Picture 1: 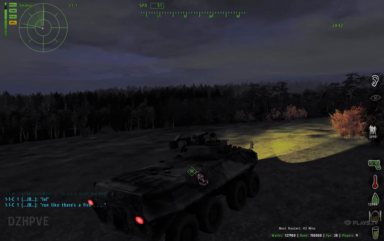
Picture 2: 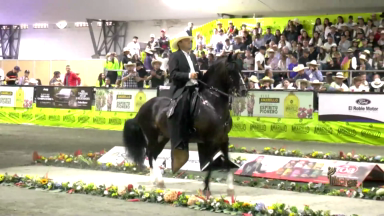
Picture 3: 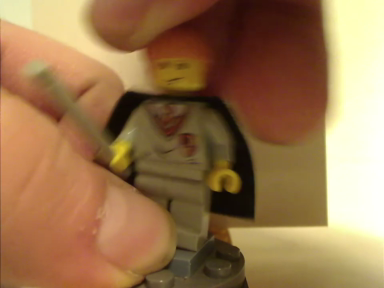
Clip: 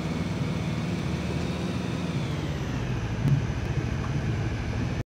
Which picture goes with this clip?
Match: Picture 1